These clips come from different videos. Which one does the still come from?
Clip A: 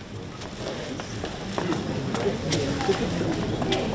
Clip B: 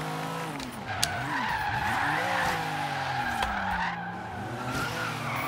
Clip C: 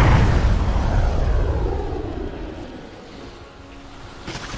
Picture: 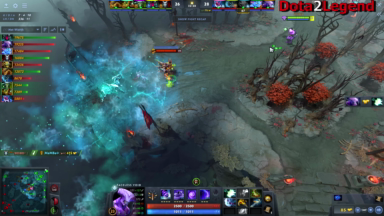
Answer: C